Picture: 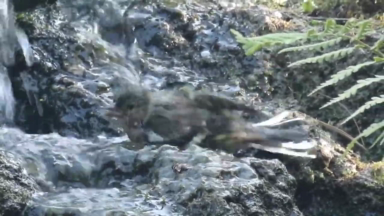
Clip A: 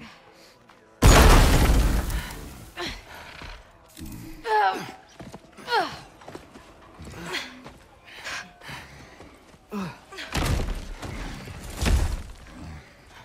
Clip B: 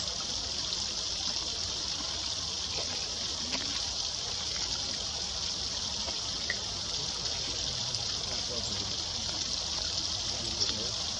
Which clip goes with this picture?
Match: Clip B